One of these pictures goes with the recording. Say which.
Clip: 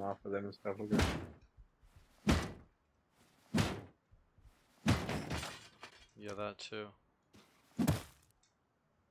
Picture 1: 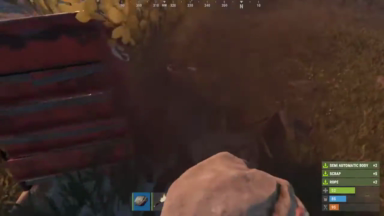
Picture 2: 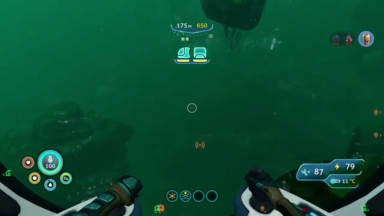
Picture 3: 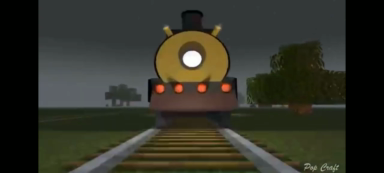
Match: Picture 1